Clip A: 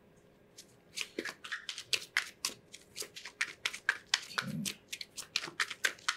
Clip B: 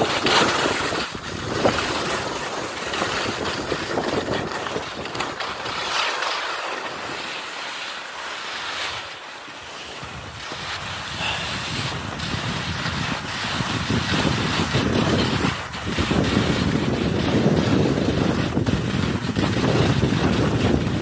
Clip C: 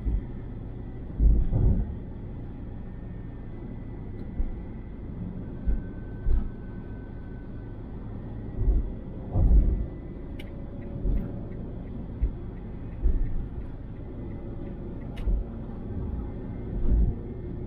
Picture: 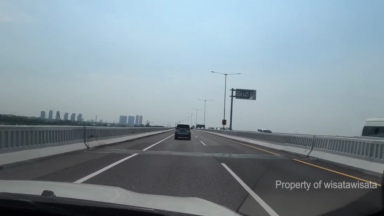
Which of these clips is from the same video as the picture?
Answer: C